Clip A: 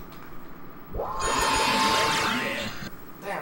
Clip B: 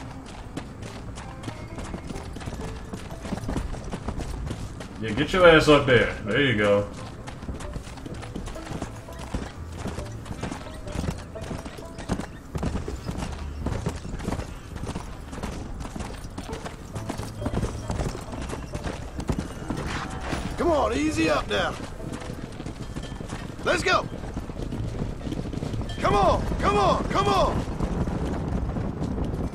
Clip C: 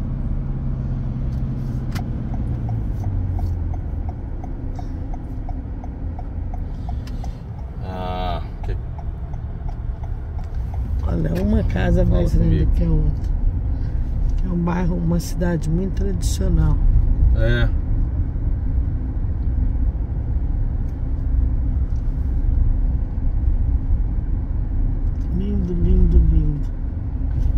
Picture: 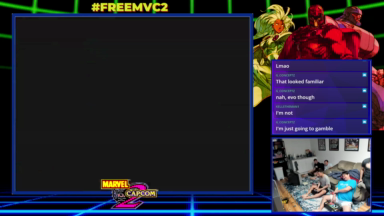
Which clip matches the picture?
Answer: A